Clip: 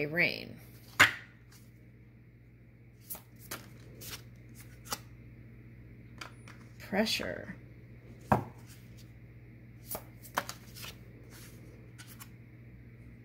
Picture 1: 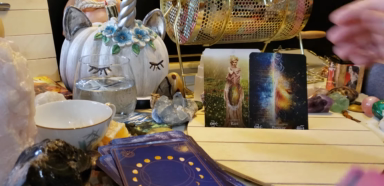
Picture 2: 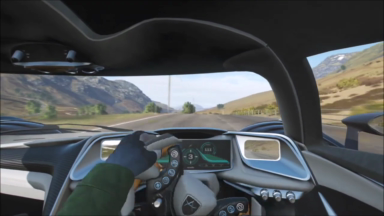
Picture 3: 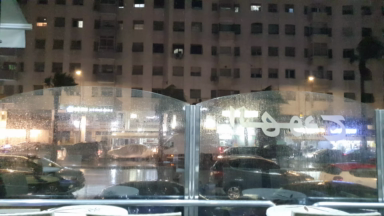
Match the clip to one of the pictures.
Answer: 1